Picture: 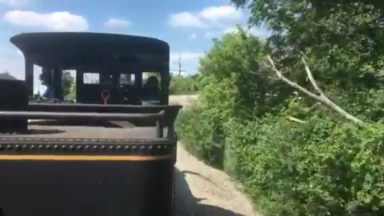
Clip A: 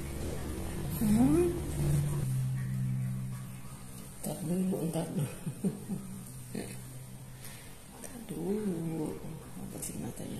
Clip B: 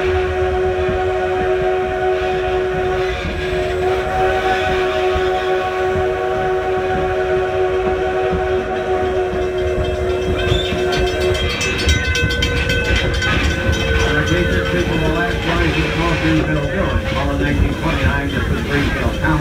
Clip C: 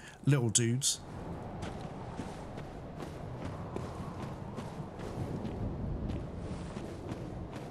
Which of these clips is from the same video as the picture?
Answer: B